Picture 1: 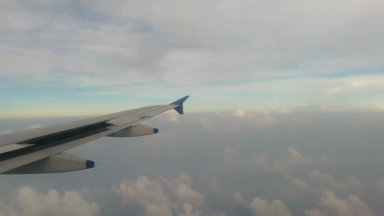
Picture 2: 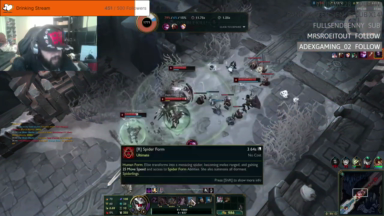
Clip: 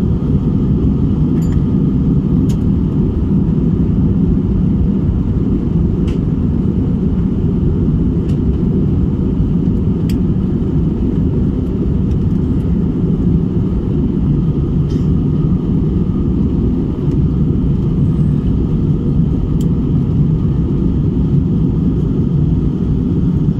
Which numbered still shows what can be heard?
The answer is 1